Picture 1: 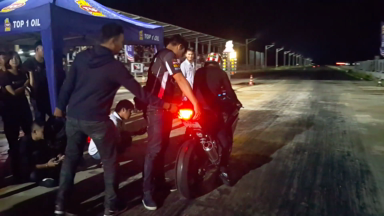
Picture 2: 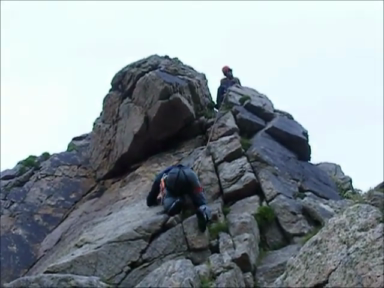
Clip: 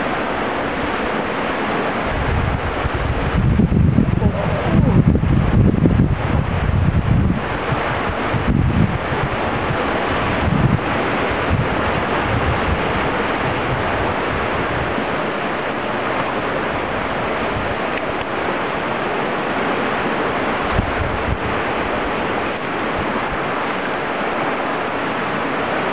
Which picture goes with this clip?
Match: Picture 2